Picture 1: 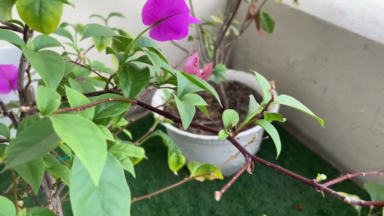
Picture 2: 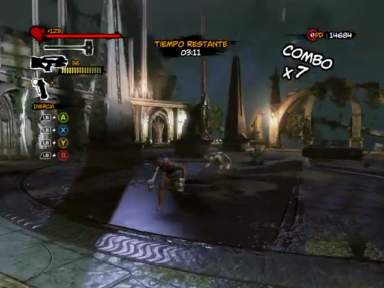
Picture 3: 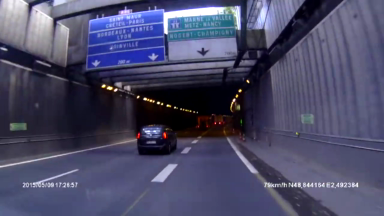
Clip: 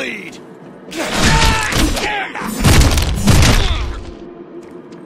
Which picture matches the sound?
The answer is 2